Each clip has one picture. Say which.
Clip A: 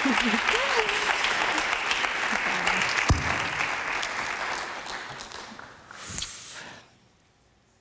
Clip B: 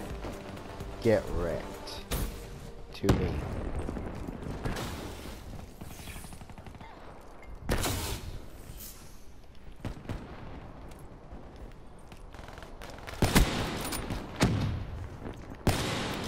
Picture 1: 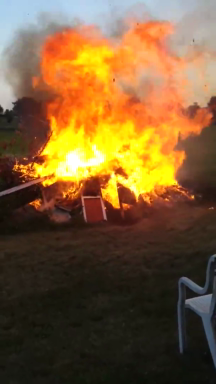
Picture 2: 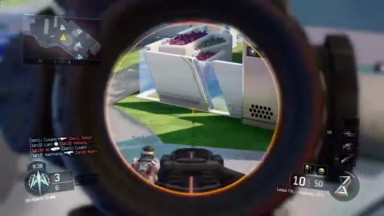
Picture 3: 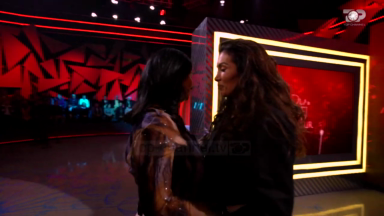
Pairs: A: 3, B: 2